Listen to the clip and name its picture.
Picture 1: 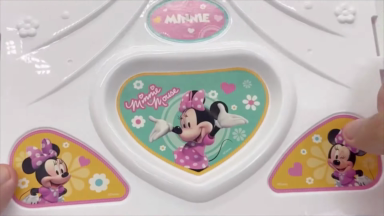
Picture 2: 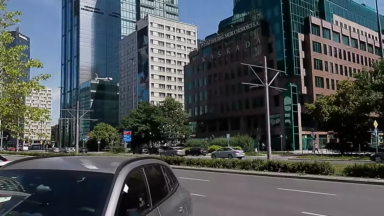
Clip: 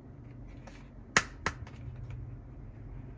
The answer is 1